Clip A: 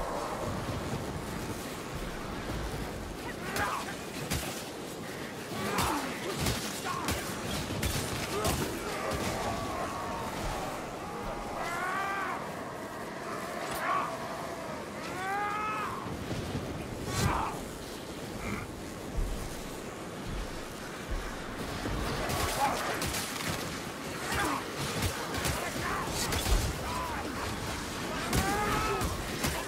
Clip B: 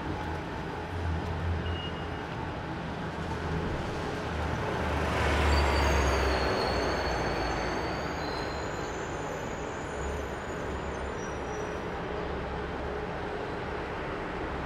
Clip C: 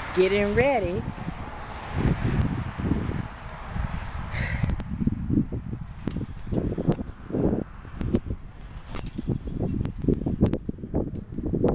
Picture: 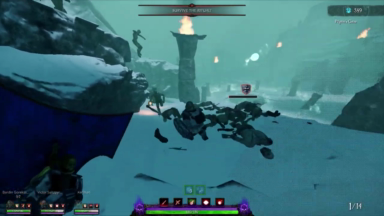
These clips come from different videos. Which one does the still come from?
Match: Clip A